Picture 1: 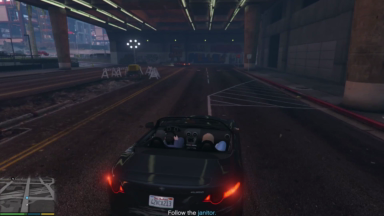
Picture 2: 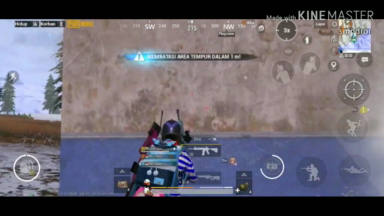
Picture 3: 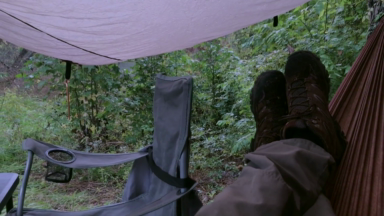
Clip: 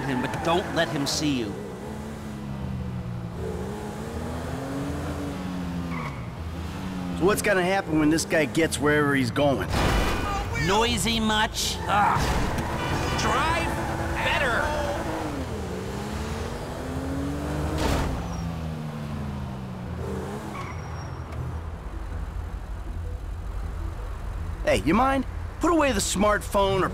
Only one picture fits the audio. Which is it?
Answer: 1